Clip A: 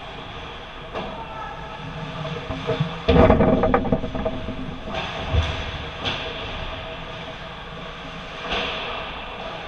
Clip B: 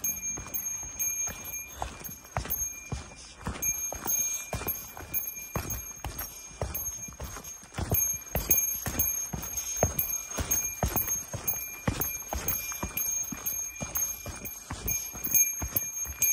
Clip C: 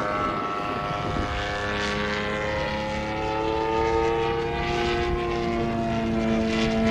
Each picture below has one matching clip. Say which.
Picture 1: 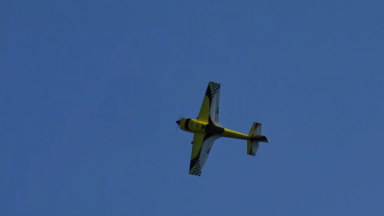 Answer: C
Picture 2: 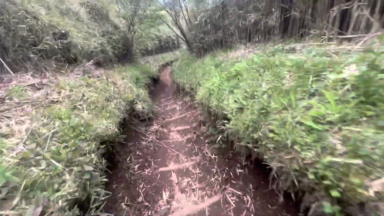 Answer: B